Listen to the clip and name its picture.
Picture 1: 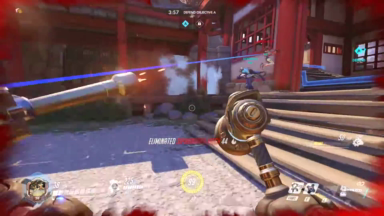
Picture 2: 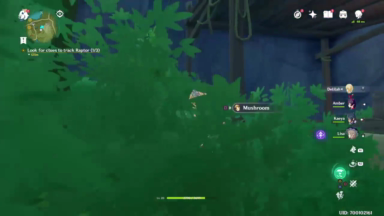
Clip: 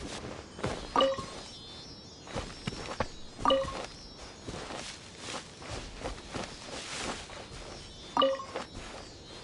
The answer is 2